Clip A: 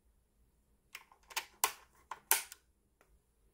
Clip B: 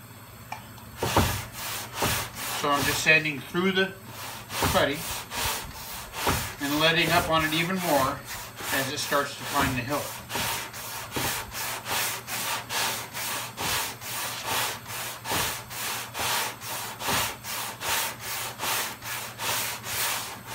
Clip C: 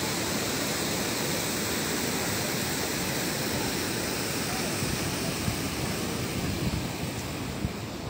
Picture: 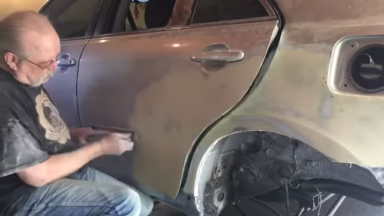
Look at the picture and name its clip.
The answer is B